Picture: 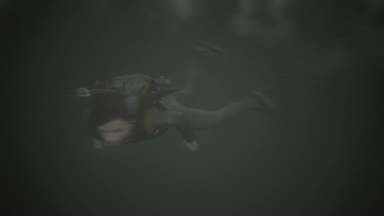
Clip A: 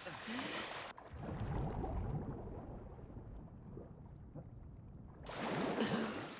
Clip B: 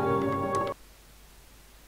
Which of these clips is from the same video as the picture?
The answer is A